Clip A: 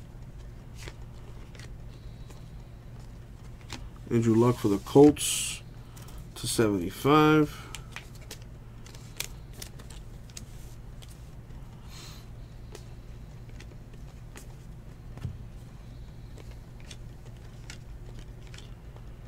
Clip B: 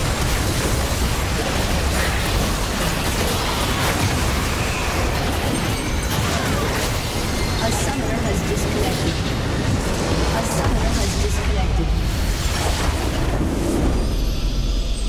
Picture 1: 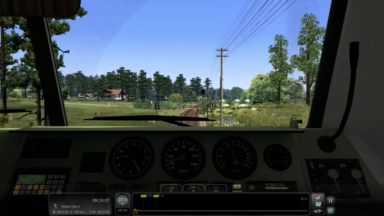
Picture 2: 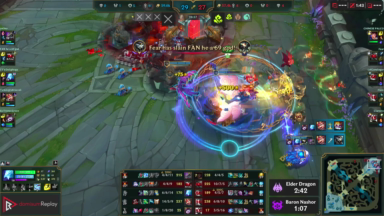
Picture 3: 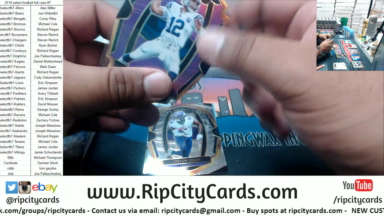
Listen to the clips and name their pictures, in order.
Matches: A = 3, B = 2